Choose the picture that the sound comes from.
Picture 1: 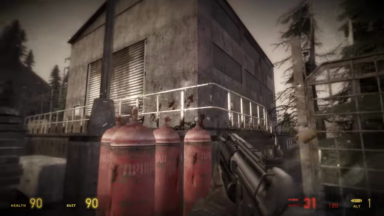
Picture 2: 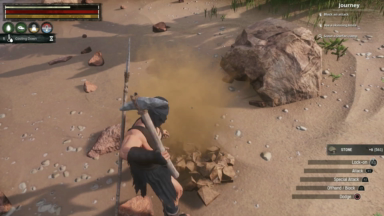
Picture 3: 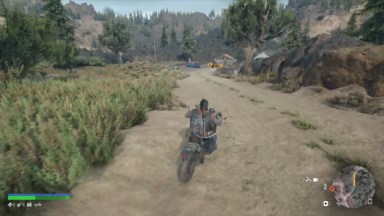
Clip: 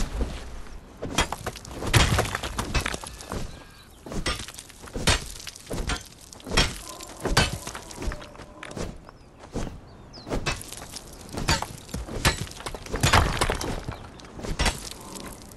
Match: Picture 2